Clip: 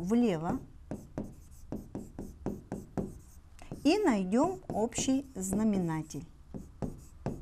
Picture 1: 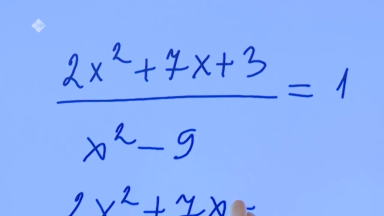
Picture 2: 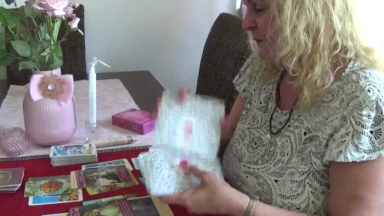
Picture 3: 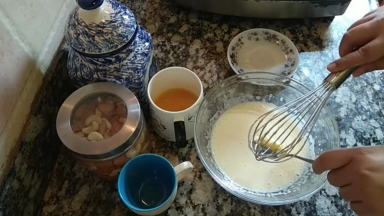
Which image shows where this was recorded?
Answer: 1